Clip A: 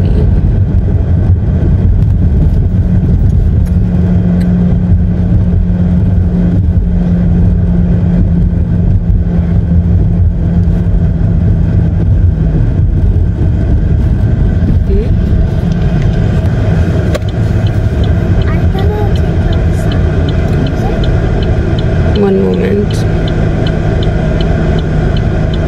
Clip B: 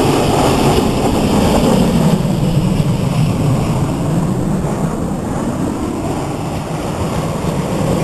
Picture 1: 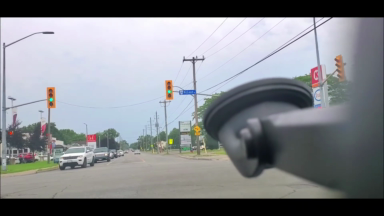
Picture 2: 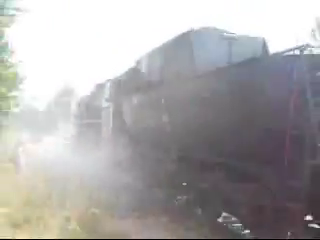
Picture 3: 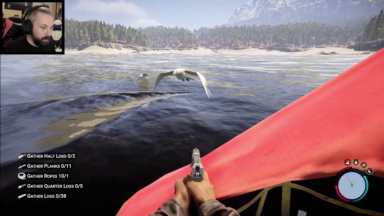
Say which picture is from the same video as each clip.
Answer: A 1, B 2